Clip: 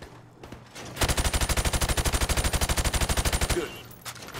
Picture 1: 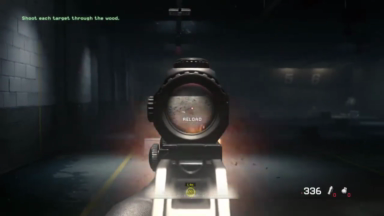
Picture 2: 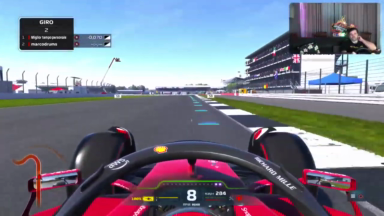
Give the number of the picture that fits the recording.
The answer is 1